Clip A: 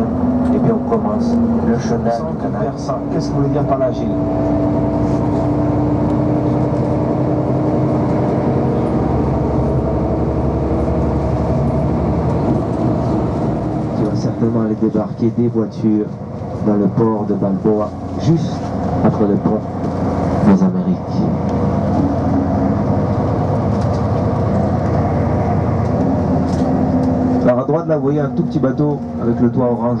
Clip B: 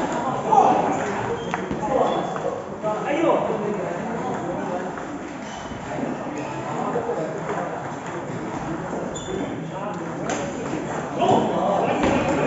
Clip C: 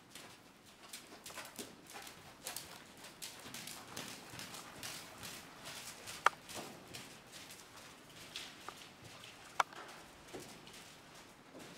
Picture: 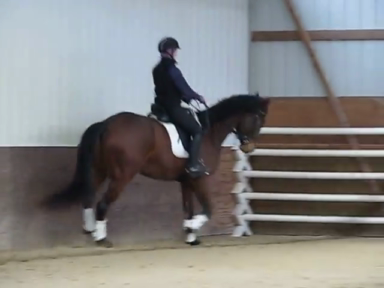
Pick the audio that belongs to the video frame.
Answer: C